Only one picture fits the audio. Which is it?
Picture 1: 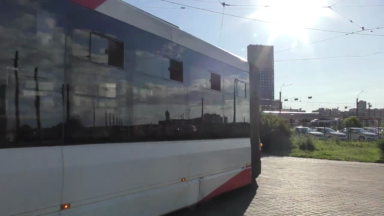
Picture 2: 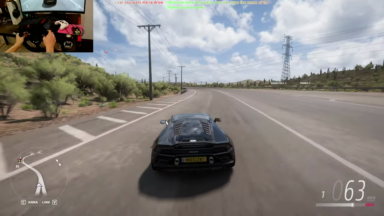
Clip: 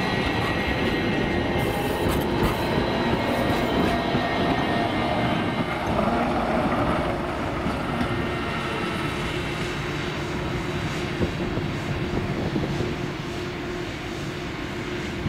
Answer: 1